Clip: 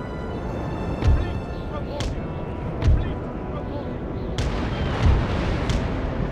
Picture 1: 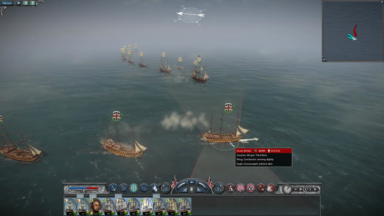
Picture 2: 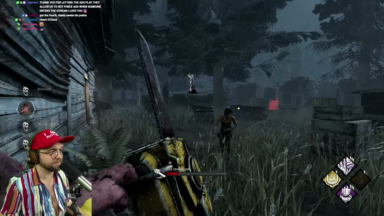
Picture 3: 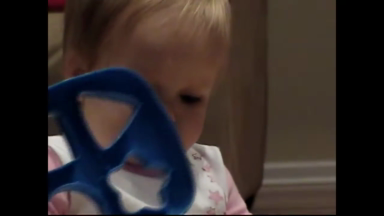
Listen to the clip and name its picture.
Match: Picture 1